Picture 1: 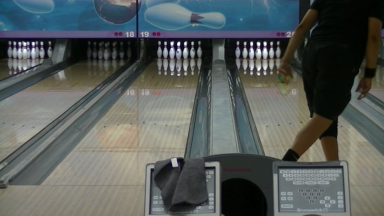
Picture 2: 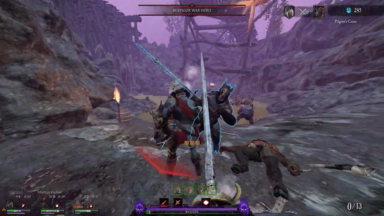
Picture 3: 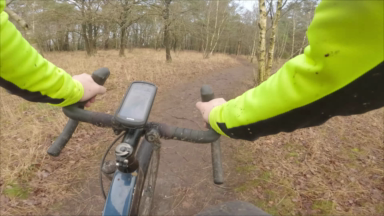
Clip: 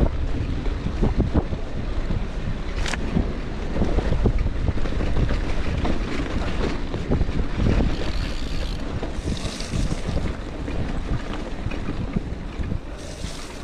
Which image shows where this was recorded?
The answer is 3